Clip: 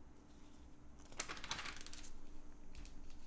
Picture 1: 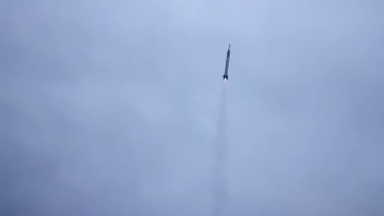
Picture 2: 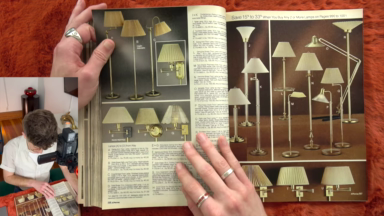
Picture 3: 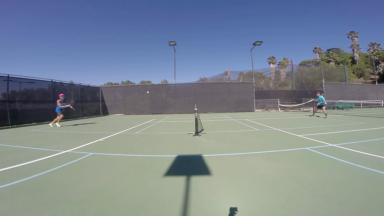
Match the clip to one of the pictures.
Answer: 2